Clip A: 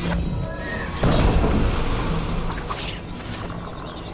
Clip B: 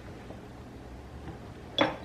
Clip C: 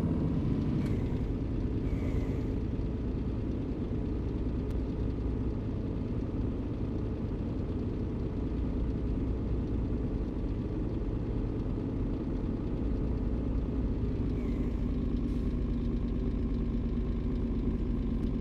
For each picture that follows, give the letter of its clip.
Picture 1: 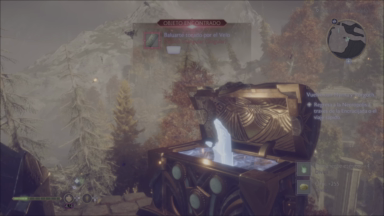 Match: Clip A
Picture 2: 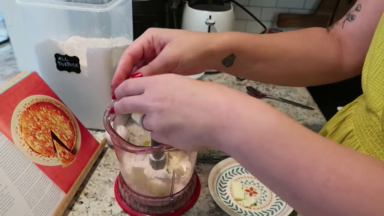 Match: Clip B